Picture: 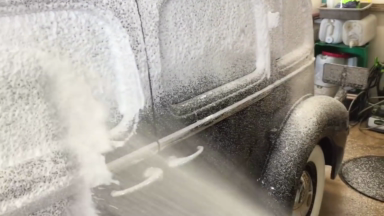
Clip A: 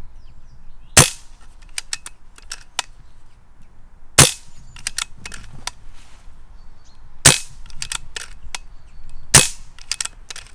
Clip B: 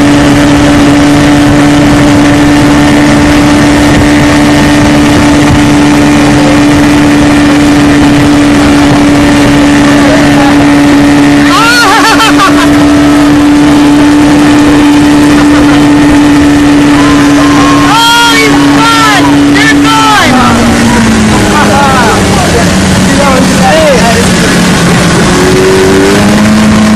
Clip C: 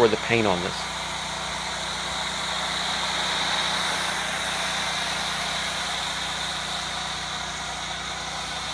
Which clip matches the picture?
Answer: C